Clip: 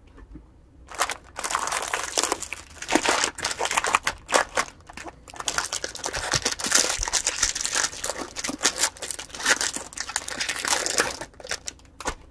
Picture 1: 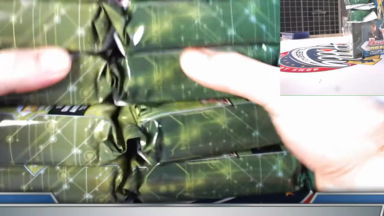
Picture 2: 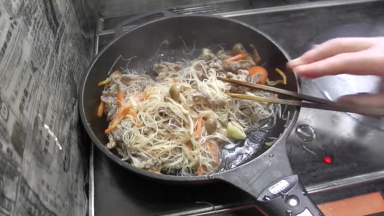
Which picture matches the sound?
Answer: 1